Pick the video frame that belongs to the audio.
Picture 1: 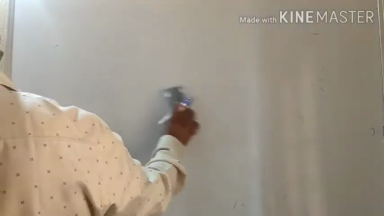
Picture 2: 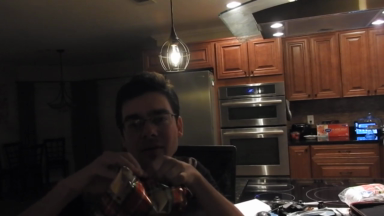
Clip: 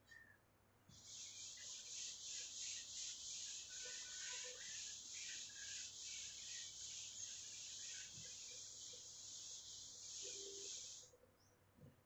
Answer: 1